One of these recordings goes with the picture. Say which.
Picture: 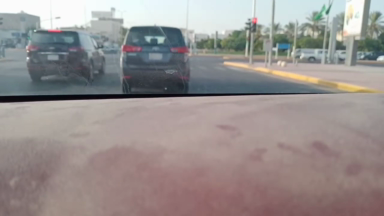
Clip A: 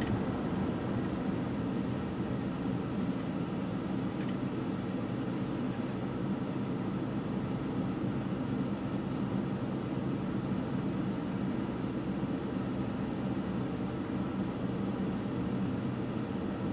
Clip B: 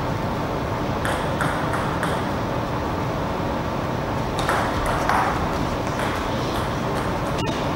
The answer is A